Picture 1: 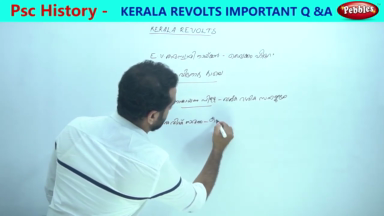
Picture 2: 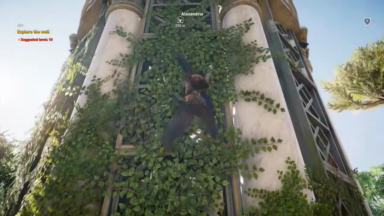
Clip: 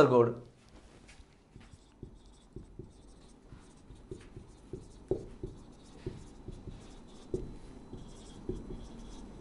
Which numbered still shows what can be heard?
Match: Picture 1